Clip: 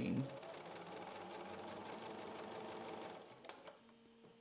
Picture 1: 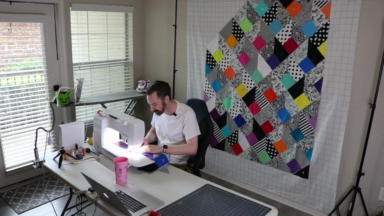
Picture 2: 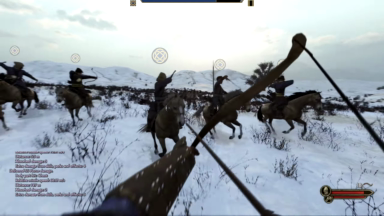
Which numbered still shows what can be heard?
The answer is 1